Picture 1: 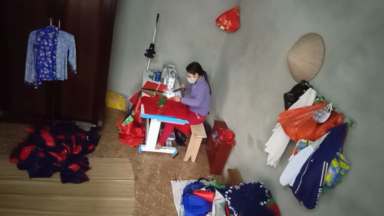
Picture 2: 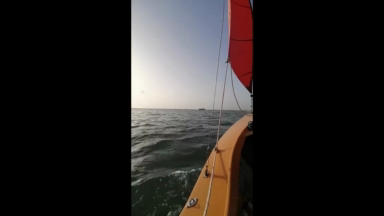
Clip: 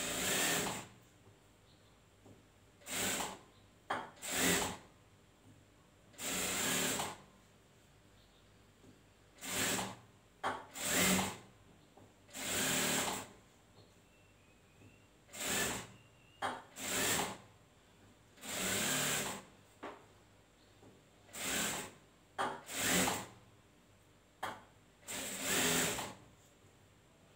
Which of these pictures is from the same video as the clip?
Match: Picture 1